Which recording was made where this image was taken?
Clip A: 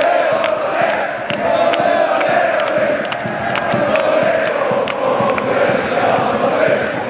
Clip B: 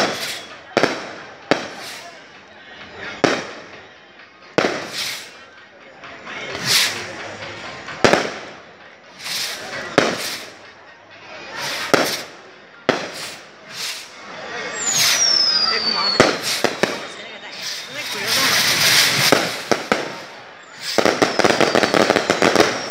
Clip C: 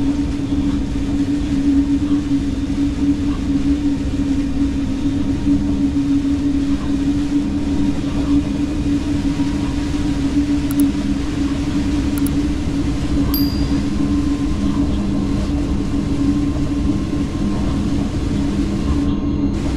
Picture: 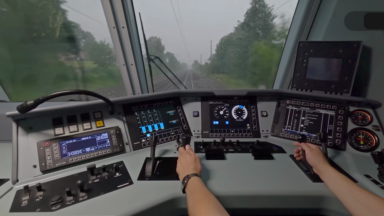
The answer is C